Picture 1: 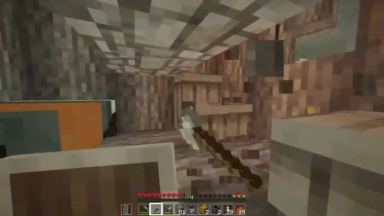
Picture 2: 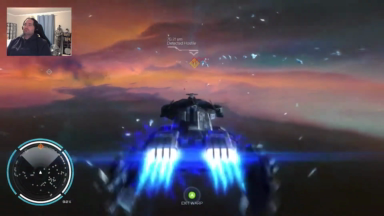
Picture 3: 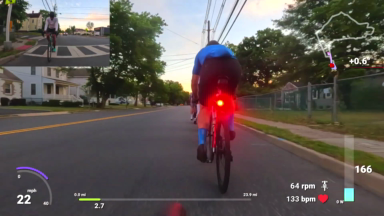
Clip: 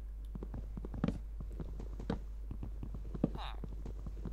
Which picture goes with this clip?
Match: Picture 1